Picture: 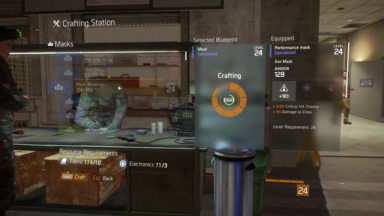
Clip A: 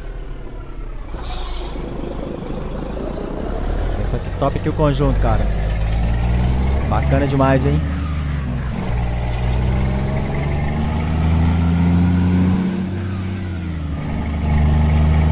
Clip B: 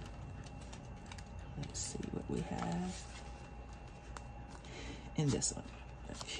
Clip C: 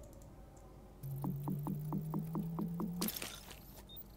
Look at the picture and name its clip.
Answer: C